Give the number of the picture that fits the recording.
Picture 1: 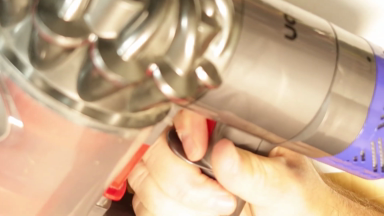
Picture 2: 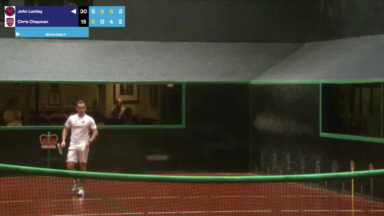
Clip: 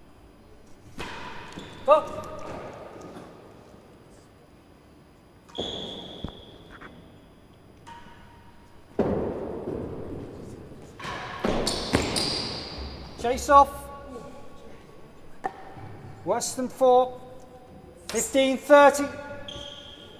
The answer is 2